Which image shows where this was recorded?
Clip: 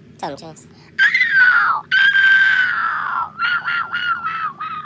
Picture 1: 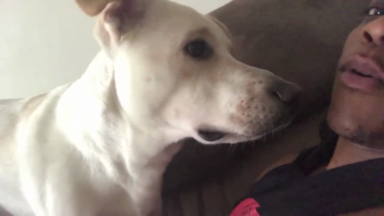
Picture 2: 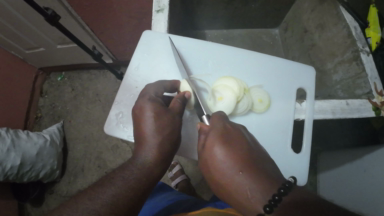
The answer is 1